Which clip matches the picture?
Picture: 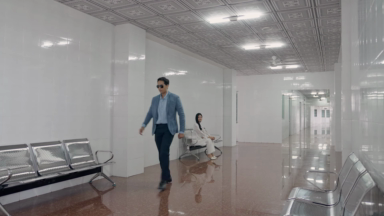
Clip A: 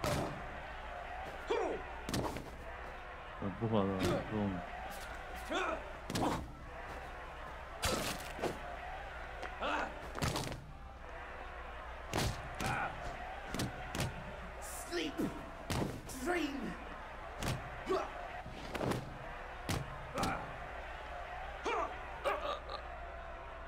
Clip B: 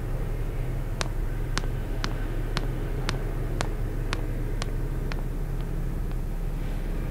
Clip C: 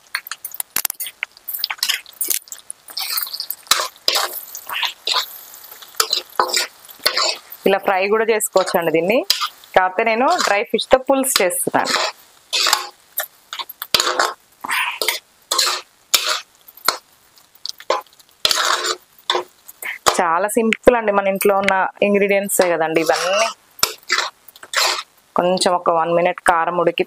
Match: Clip B